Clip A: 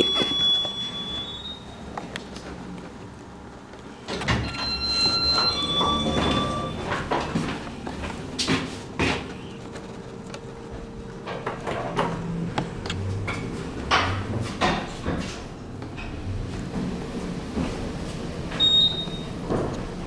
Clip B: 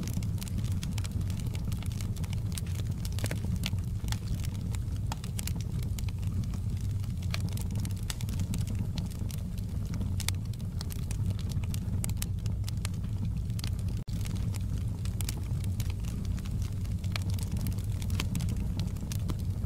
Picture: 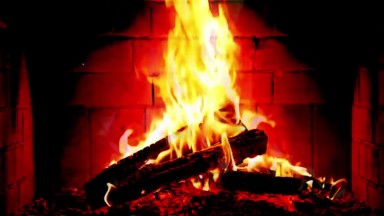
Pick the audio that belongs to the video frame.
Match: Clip B